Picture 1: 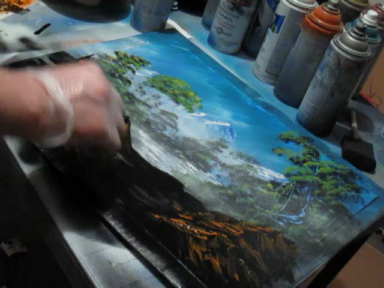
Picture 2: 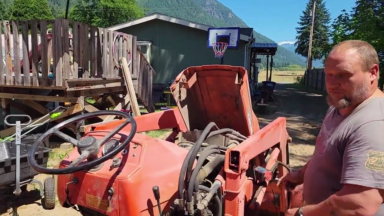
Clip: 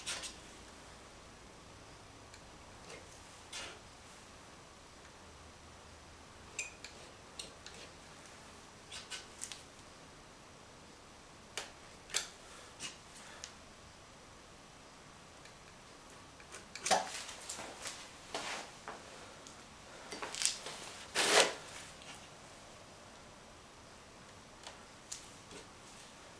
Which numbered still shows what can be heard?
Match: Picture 1